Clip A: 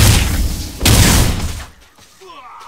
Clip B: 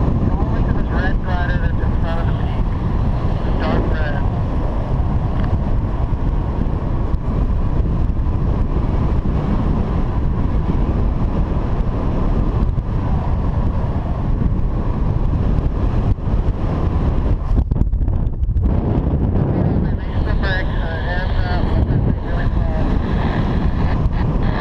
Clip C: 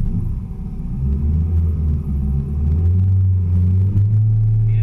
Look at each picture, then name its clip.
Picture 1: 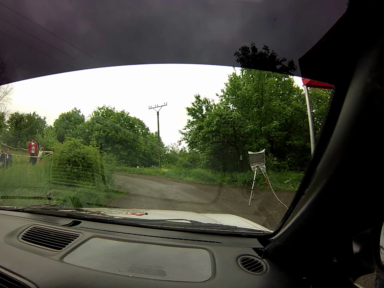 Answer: C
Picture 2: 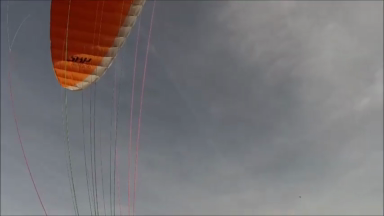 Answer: B